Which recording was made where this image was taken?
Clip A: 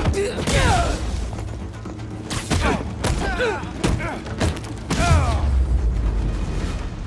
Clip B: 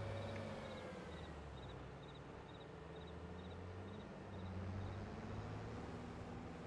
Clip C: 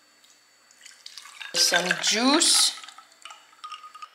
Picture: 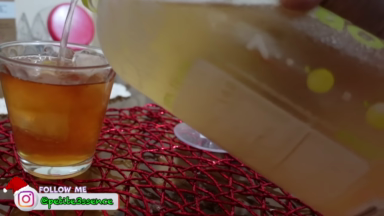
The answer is C